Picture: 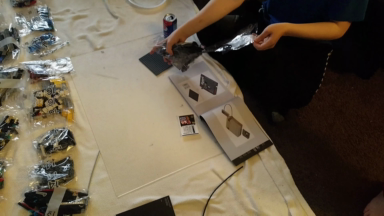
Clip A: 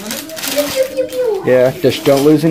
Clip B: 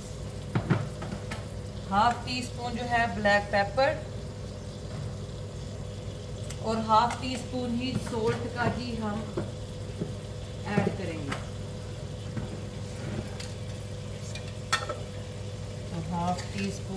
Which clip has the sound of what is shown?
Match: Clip A